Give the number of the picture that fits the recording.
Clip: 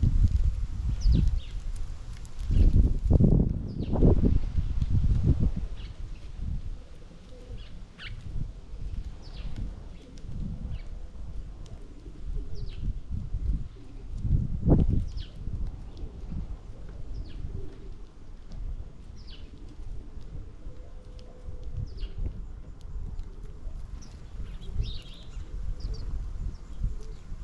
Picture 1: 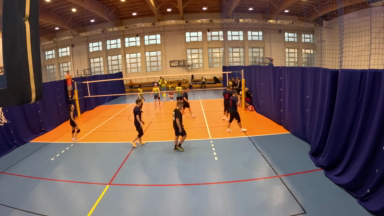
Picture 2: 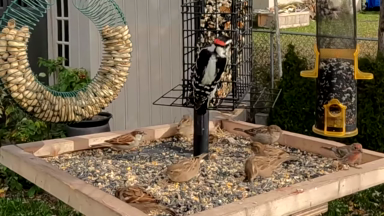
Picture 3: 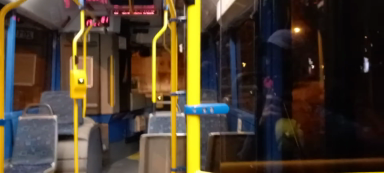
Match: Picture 2